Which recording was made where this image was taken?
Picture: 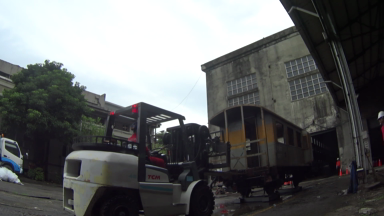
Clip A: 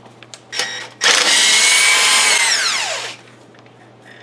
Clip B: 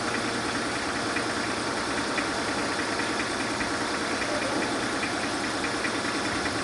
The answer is B